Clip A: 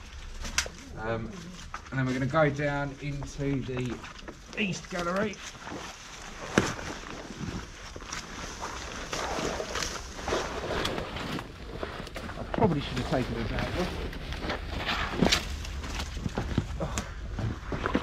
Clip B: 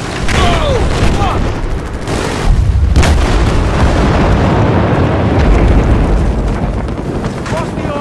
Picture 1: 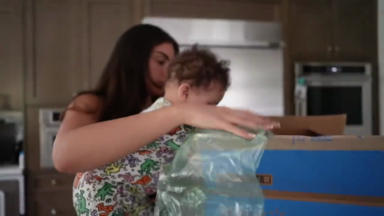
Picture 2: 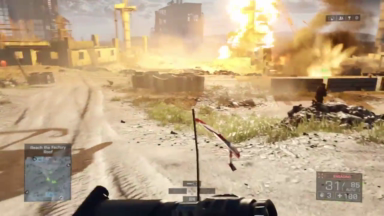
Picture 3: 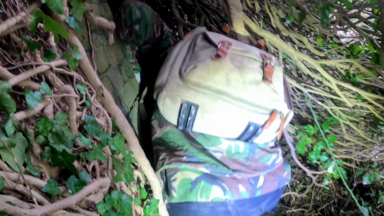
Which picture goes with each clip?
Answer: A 3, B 2